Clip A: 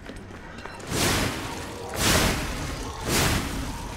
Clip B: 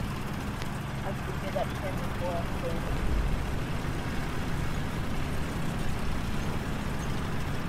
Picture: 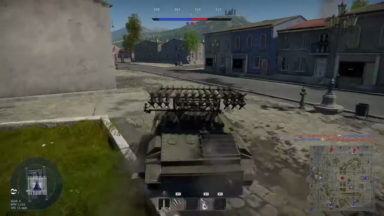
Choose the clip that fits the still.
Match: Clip B